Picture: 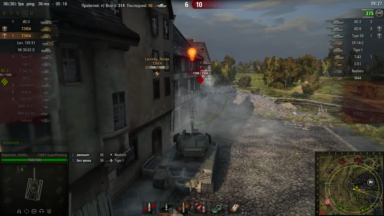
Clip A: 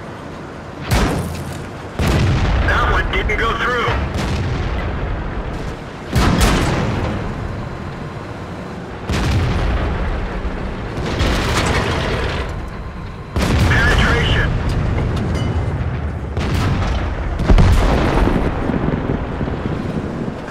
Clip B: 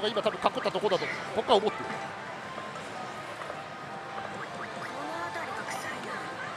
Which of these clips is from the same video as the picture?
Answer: A